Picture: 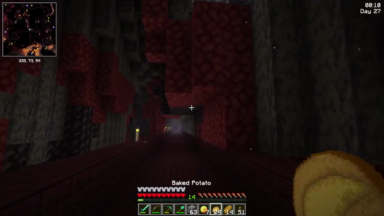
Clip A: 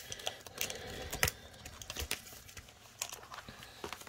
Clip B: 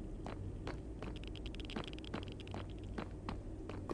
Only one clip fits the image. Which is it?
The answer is B